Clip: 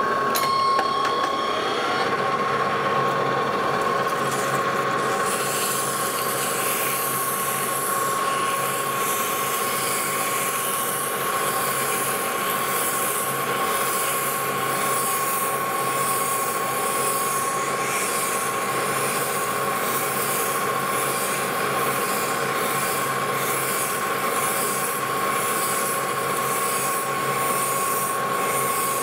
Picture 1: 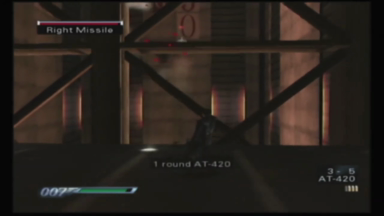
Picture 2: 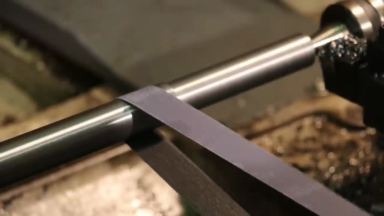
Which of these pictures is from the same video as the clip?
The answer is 2